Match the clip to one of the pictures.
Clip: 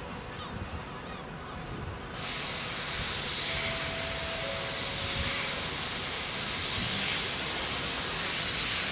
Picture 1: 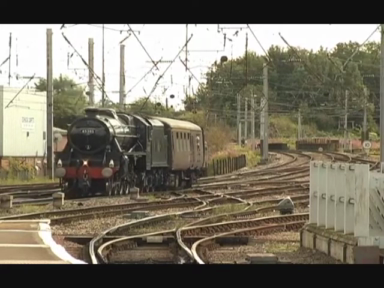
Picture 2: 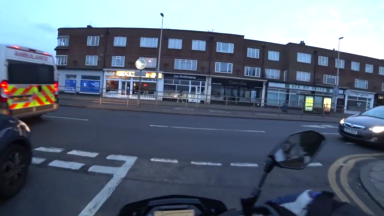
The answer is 1